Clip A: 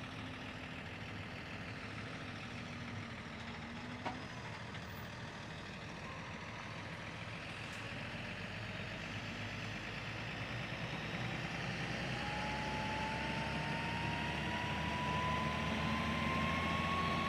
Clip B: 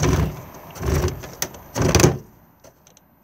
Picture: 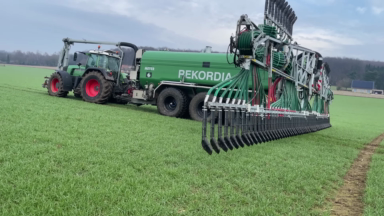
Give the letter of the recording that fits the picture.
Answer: A